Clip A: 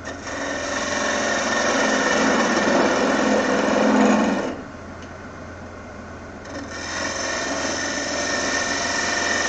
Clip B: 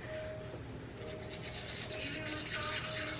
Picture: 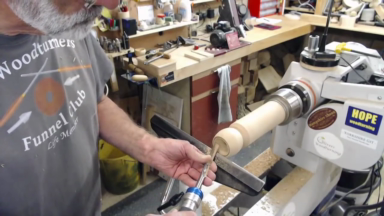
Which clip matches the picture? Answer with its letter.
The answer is A